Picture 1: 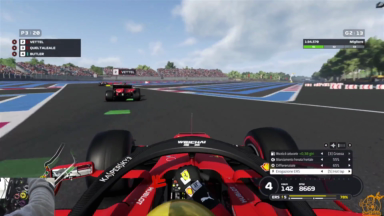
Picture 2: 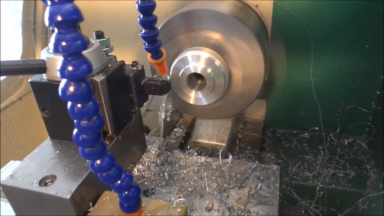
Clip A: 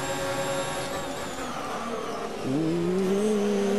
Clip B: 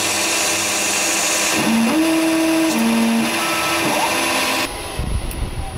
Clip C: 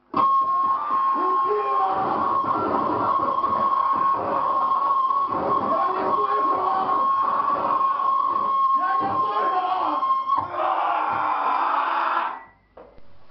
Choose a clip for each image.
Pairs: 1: A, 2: B